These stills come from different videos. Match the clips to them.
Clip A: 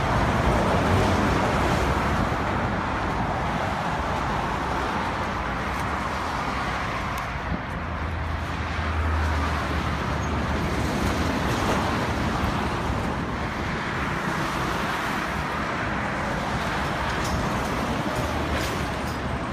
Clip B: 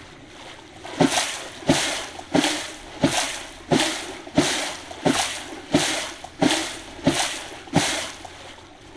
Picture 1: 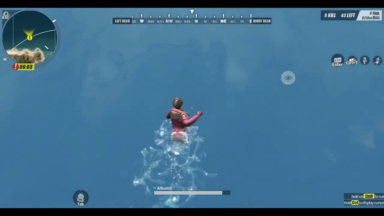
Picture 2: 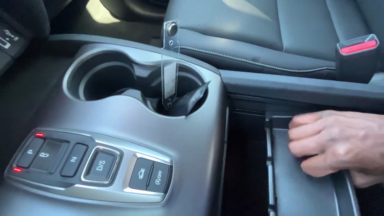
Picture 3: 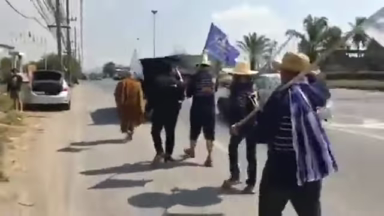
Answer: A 3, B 1